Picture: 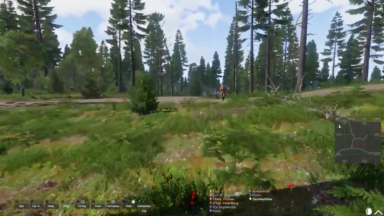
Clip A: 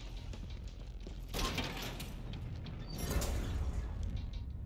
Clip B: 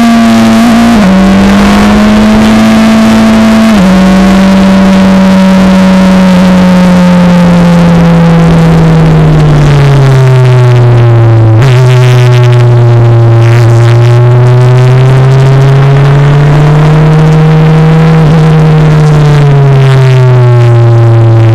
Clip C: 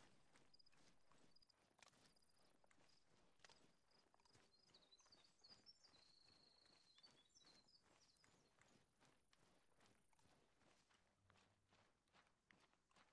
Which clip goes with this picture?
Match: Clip C